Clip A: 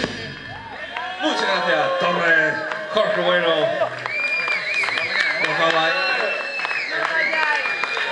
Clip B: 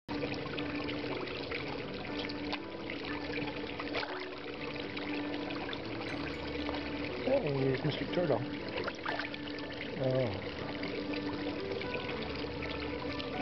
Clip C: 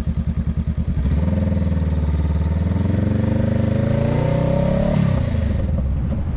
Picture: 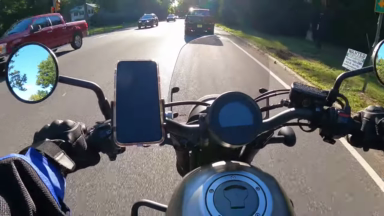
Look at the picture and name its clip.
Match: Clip C